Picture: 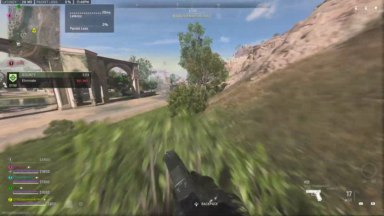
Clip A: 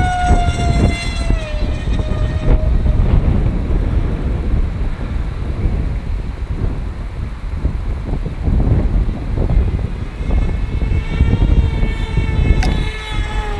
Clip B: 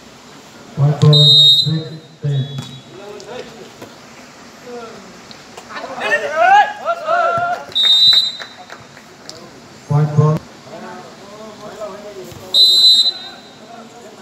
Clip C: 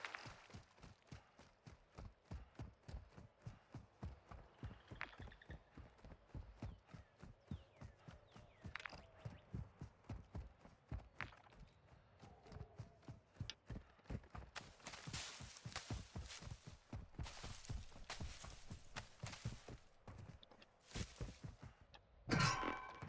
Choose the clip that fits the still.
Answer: C